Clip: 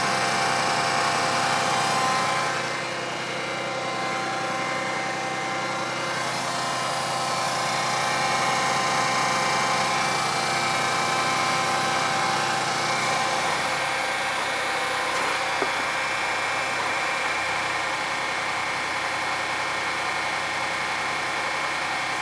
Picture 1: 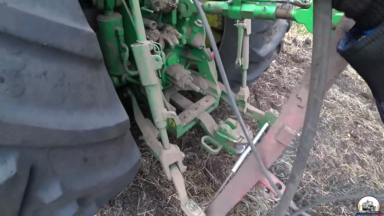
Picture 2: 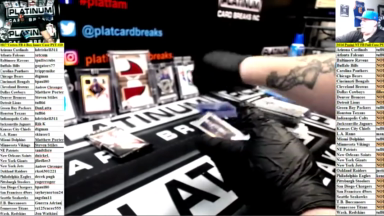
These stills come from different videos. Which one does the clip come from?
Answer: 1